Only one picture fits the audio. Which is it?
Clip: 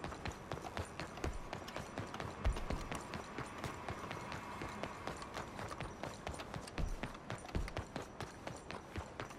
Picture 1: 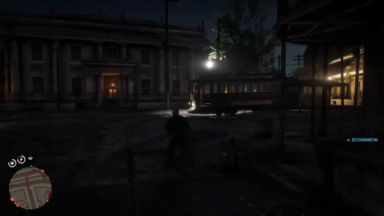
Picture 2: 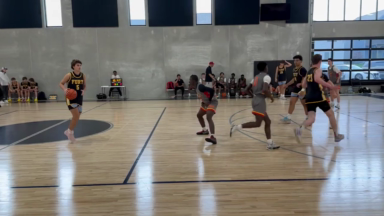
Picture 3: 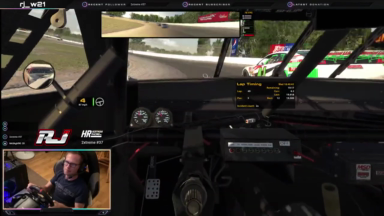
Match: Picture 1